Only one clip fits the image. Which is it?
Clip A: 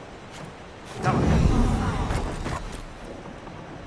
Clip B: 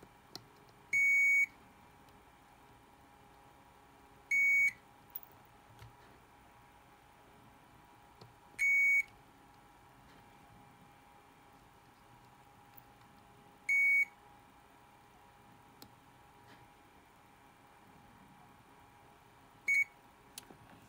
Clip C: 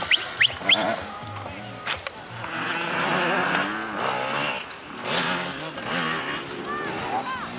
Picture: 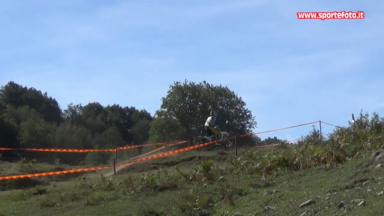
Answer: C